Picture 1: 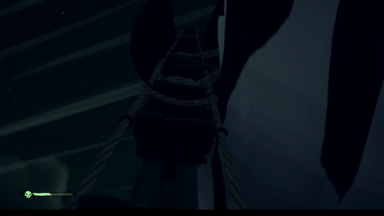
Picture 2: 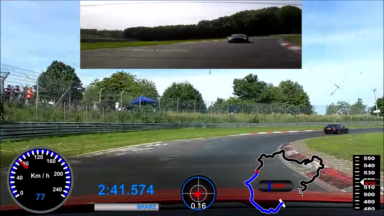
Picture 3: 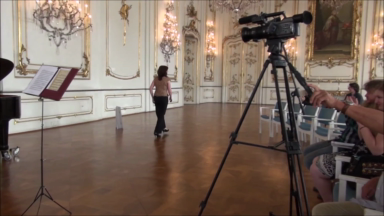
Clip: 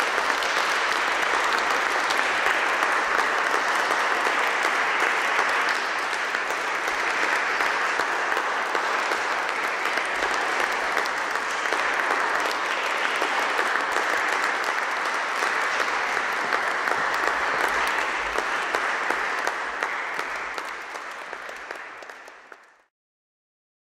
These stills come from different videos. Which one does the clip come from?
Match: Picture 3